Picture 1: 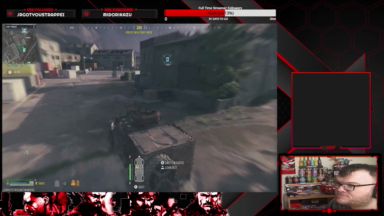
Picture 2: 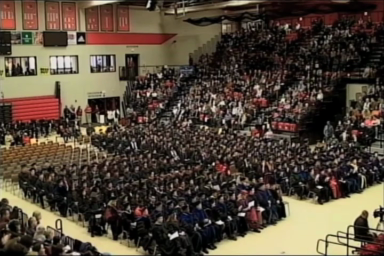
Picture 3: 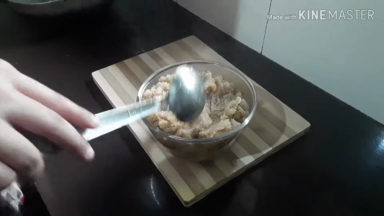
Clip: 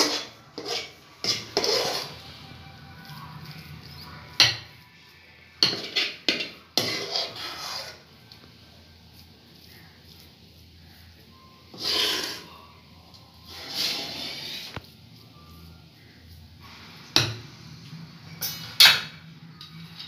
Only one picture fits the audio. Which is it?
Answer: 3